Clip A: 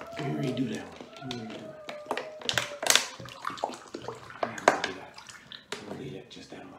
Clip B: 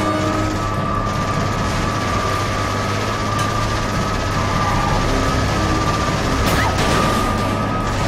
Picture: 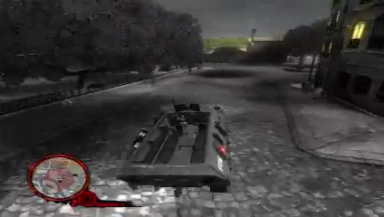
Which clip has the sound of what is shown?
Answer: B